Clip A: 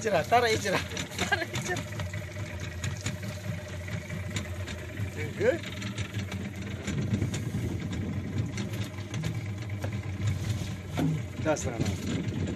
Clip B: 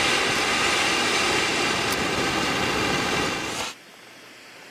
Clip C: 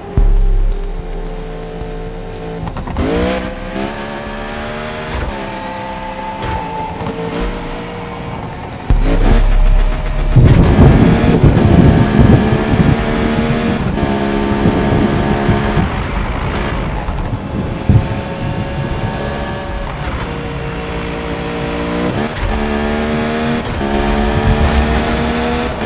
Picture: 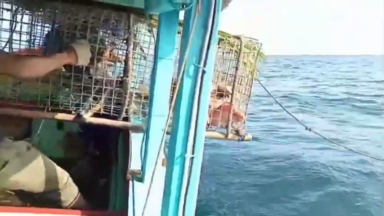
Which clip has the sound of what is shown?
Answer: A